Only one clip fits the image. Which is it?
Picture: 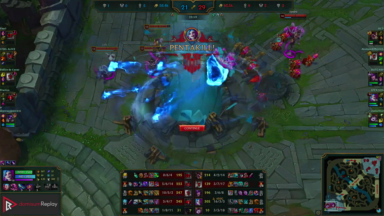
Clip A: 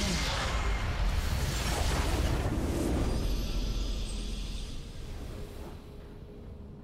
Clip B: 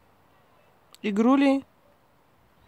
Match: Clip A